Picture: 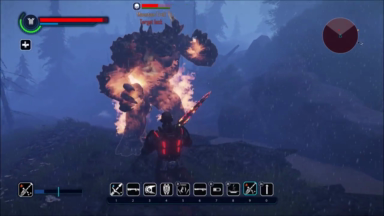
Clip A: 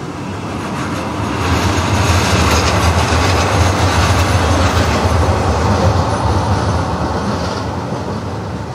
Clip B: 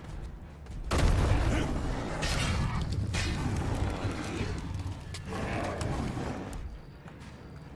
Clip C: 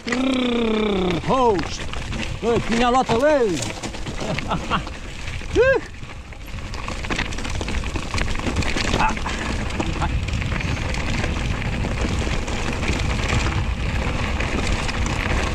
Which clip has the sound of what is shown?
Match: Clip B